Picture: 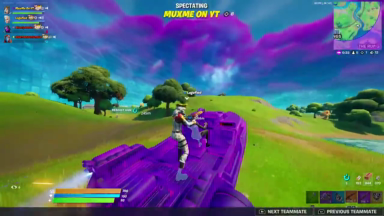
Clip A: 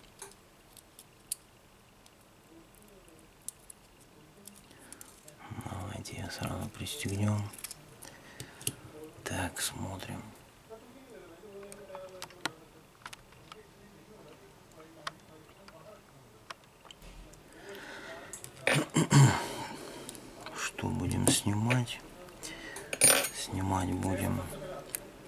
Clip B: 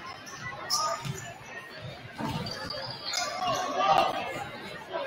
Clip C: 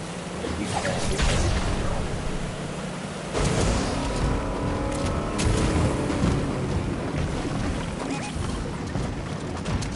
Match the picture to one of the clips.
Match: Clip C